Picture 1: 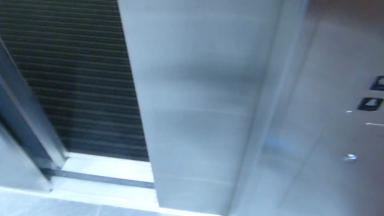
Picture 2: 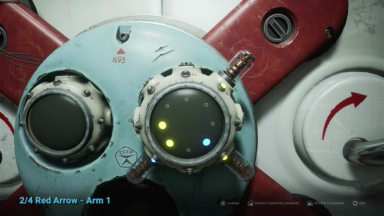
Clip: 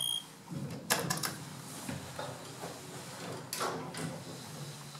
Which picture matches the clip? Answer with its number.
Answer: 1